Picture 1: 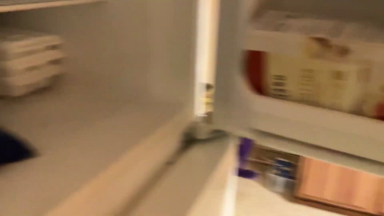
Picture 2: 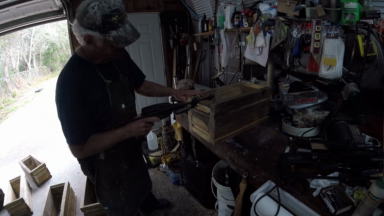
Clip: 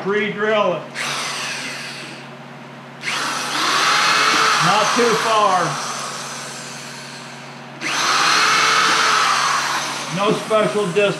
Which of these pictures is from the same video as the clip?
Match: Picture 2